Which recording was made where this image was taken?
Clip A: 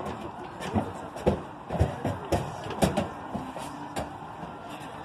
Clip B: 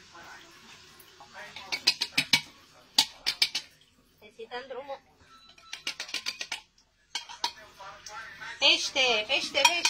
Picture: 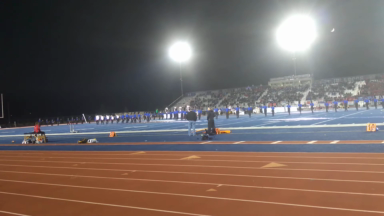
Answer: A